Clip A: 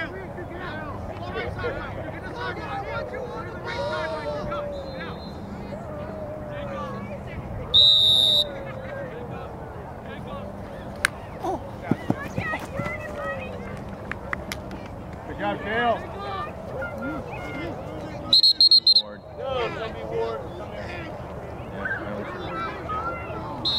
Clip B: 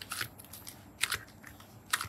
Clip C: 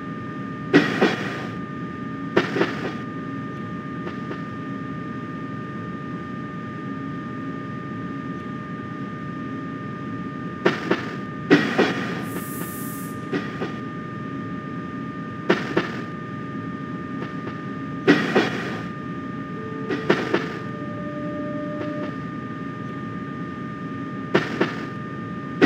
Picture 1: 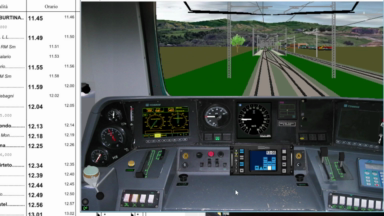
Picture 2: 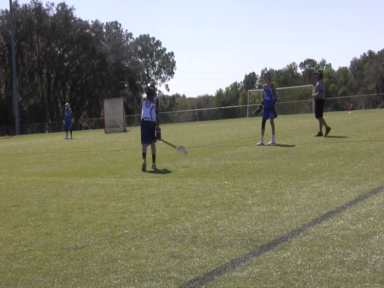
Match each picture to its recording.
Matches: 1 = C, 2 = A